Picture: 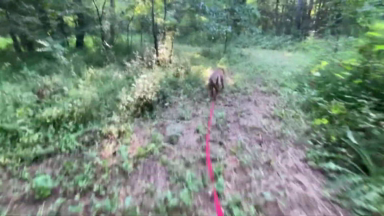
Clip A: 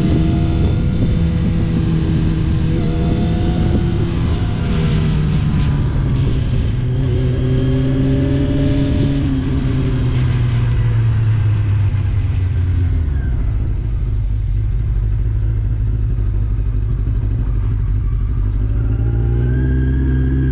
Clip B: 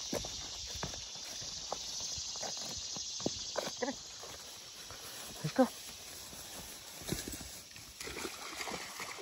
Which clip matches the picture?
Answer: B